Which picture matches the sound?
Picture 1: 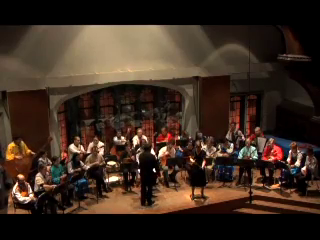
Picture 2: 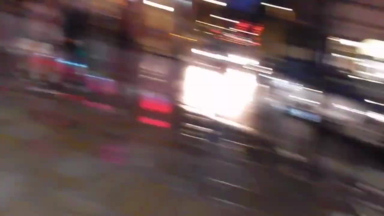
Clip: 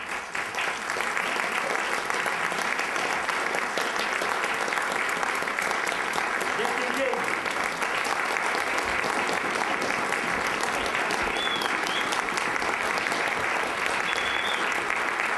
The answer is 1